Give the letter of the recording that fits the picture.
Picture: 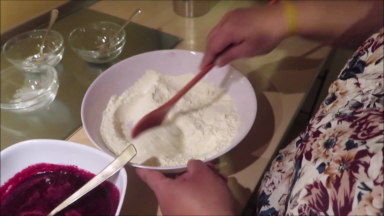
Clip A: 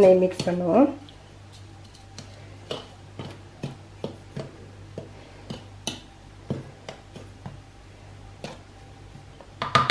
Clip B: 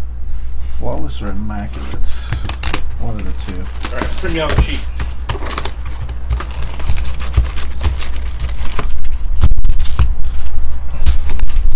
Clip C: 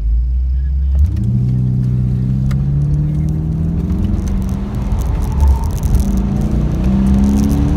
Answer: A